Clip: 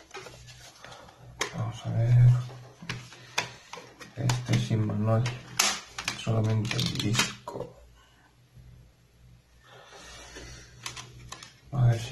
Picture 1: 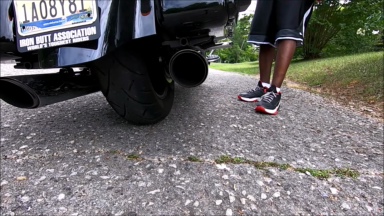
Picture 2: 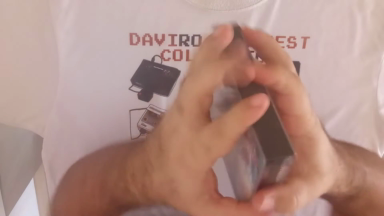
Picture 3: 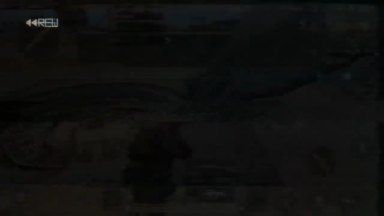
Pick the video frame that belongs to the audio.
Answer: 2